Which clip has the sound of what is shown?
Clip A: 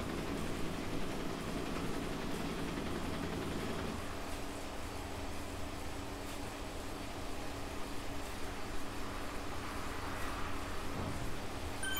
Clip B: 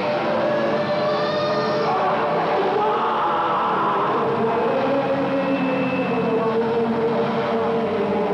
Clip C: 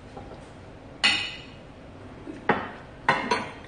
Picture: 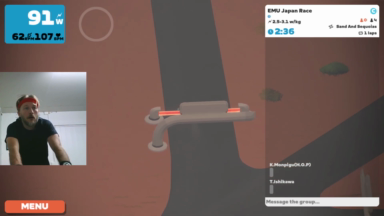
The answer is A